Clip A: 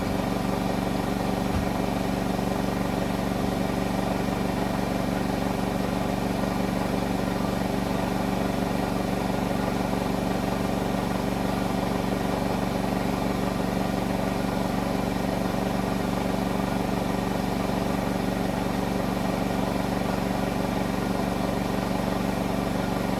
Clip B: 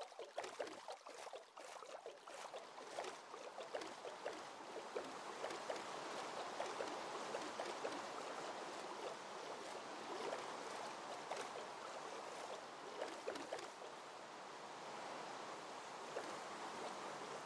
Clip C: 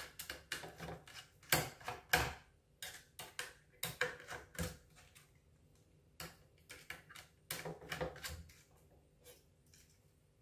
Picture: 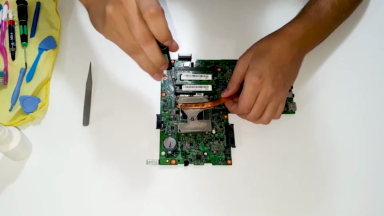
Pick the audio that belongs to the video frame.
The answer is C